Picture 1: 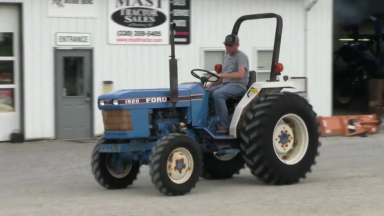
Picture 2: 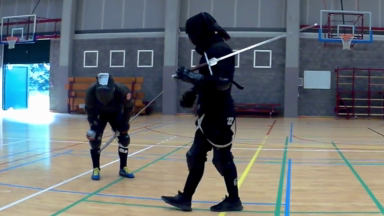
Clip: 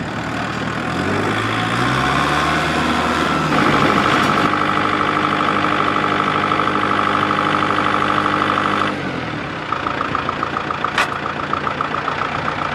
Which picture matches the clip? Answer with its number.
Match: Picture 1